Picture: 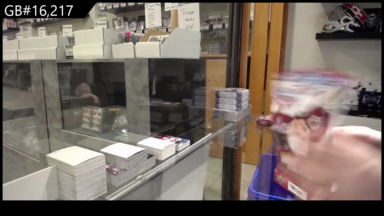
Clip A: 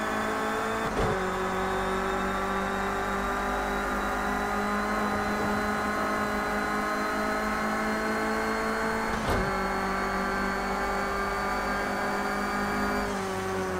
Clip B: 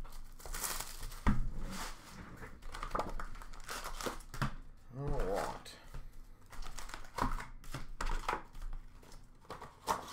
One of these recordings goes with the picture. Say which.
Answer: B